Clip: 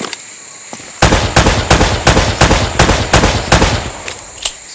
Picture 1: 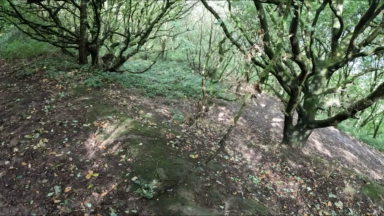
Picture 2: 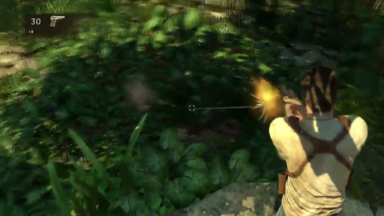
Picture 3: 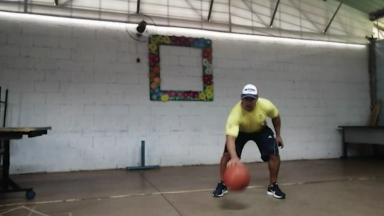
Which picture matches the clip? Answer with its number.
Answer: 2